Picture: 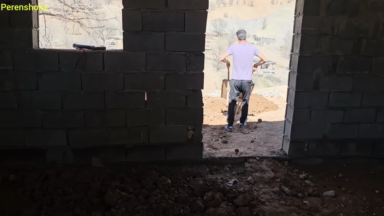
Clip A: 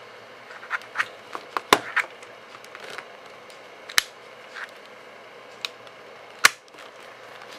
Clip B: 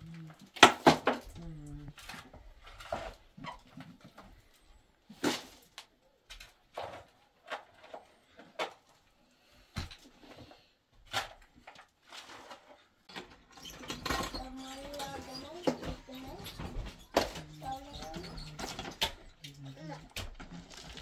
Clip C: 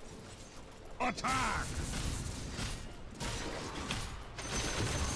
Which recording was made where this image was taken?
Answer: B